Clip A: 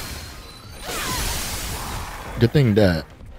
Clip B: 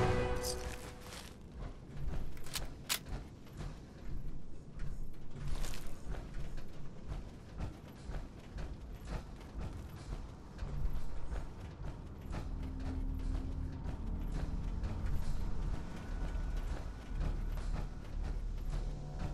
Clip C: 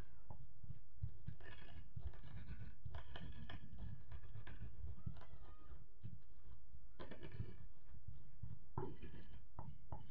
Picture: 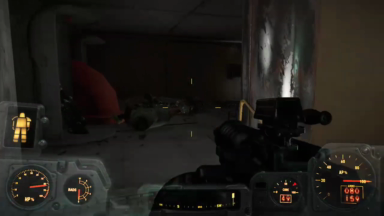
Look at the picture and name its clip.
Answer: B